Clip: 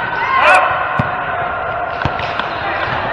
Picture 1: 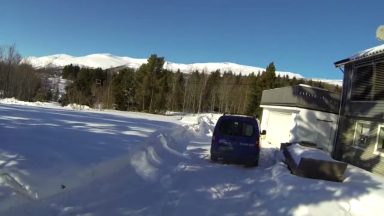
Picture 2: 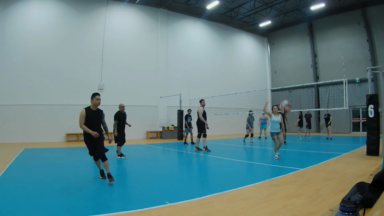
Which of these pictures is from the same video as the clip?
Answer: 2